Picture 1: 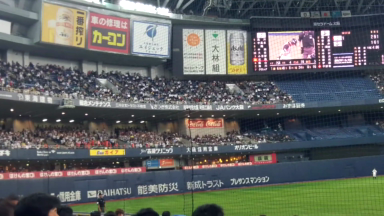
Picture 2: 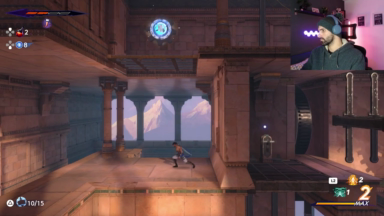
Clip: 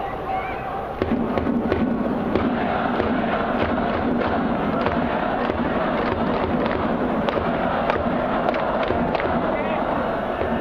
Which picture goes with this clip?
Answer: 1